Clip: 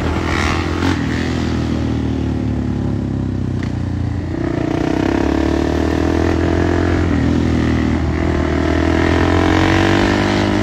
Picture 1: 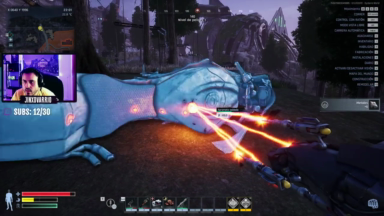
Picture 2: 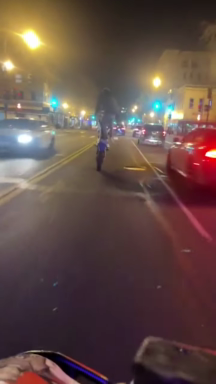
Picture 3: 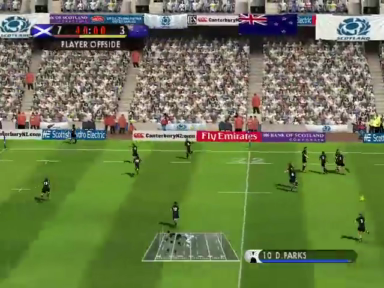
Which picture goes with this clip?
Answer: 2